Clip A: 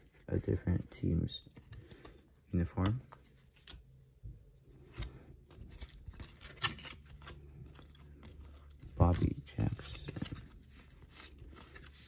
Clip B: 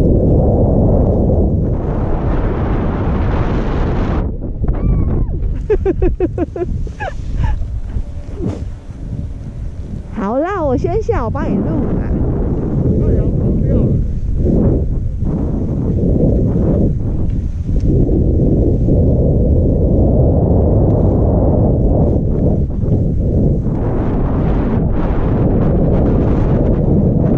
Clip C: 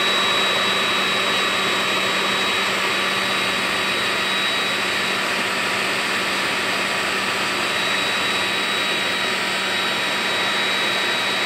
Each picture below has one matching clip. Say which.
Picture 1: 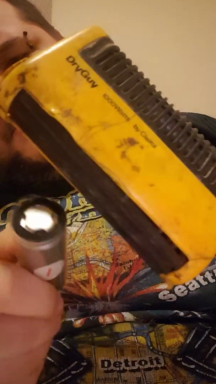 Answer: C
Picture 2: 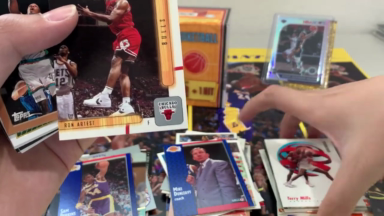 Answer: A